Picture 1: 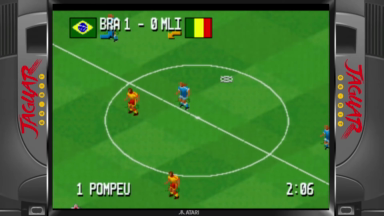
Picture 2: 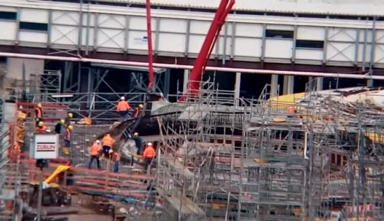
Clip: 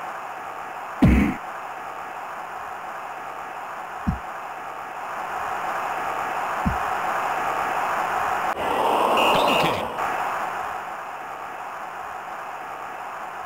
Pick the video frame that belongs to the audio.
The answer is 1